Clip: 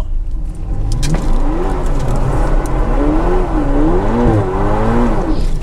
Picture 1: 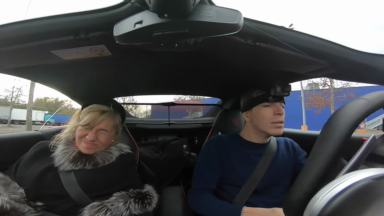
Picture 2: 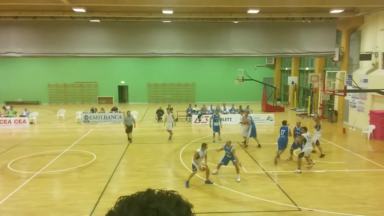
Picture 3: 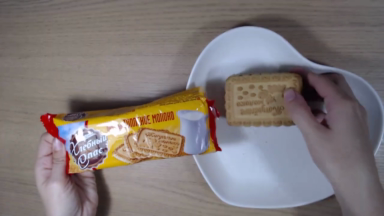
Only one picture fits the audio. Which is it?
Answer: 1